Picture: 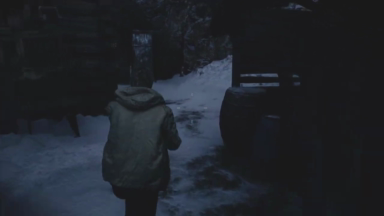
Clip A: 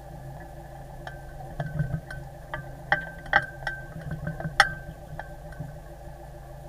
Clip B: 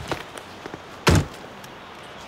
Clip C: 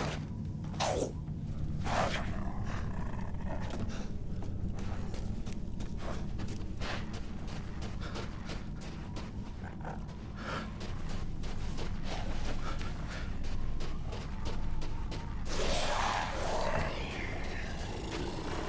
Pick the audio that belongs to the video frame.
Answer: C